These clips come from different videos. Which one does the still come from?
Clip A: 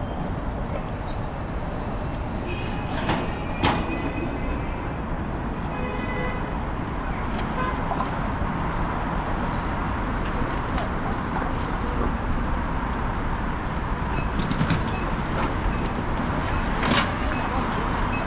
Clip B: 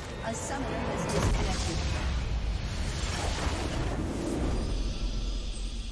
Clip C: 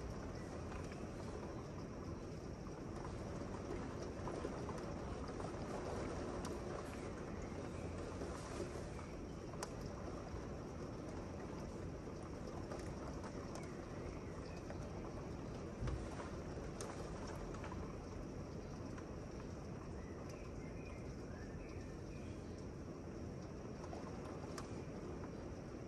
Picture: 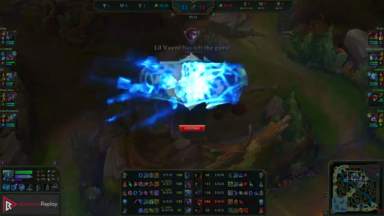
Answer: B